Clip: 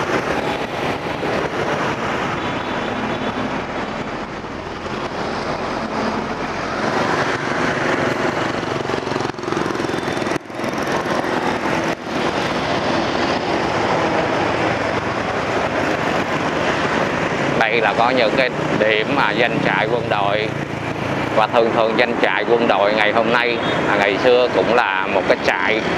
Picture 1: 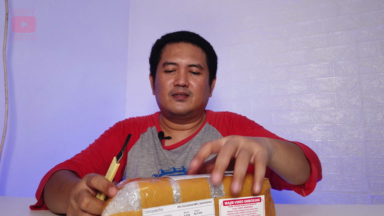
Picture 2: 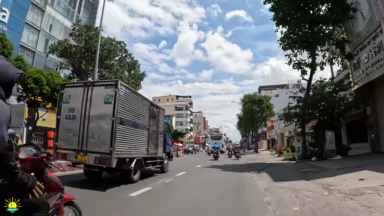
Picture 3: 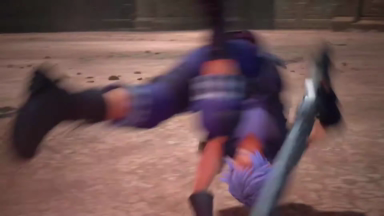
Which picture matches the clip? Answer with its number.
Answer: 2